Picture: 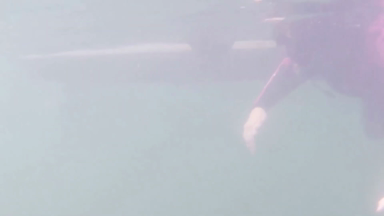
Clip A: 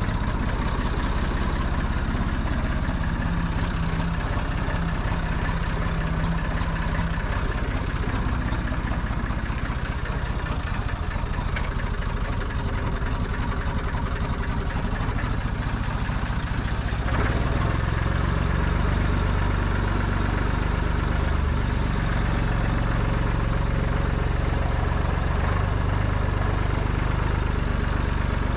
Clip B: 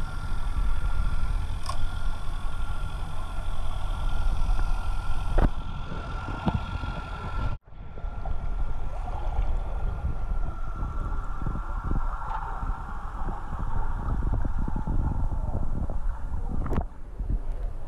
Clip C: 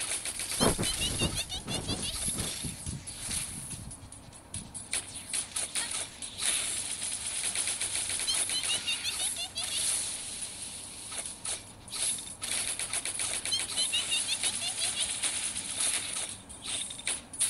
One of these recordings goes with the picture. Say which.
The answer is B